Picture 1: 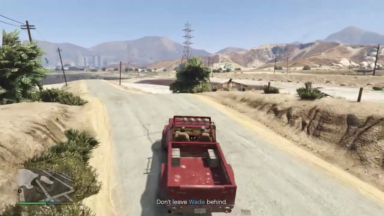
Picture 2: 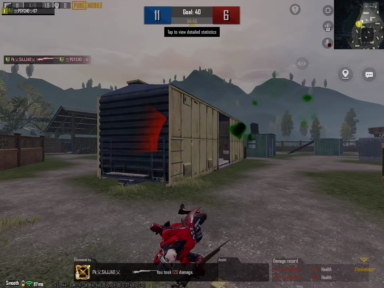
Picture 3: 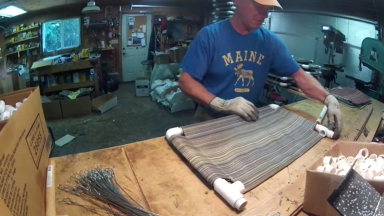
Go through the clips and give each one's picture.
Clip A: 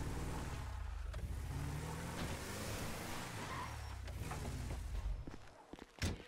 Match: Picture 1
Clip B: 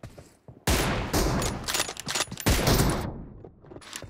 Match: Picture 2